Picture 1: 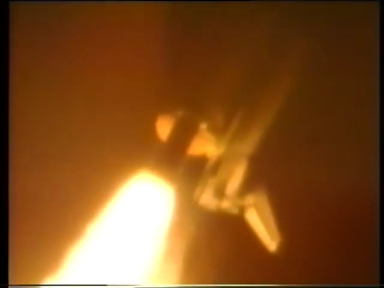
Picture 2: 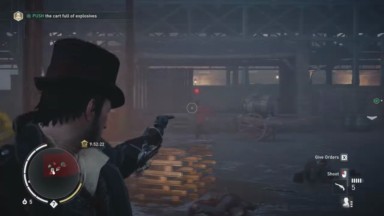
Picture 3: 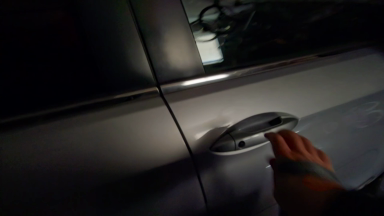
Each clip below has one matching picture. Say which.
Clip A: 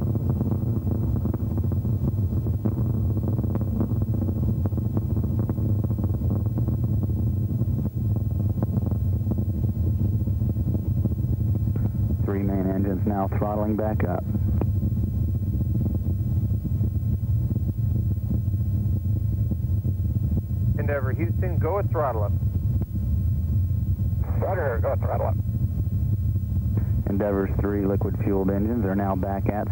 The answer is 1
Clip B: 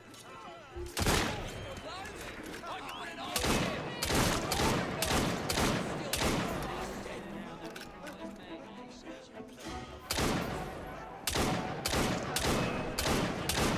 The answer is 2